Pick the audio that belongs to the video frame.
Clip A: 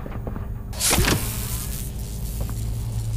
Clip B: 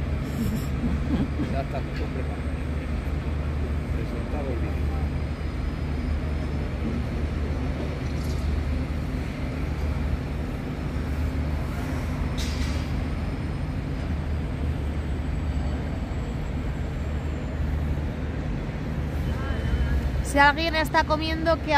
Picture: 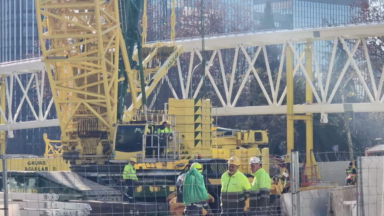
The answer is B